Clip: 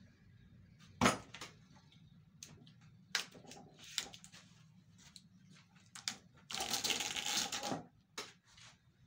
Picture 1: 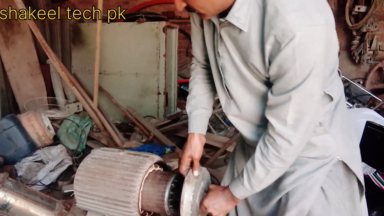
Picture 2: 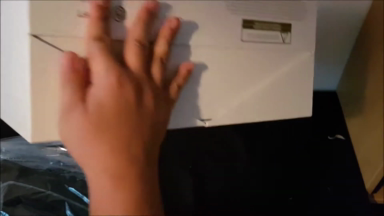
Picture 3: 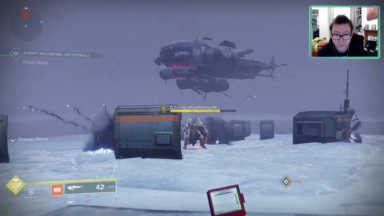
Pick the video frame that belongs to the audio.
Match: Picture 1